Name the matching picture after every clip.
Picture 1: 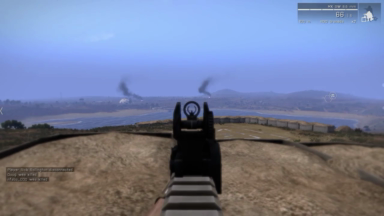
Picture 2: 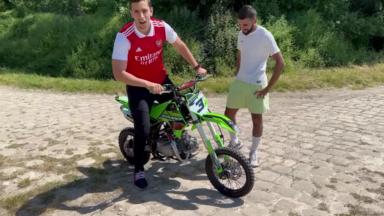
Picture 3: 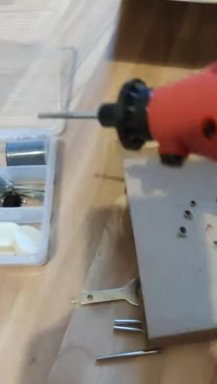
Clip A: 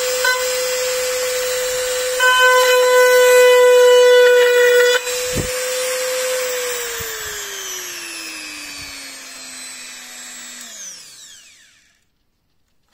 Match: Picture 3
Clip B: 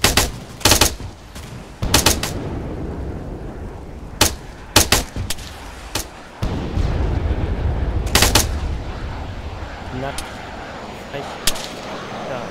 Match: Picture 1